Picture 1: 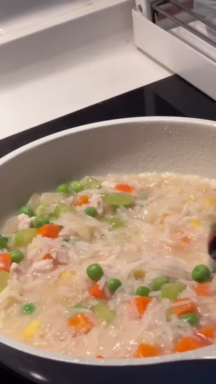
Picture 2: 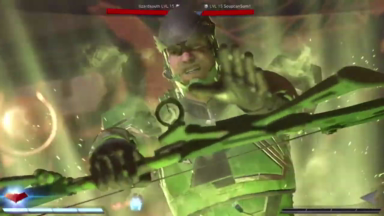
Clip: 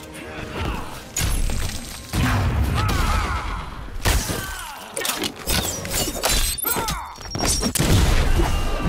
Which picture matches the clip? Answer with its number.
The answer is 2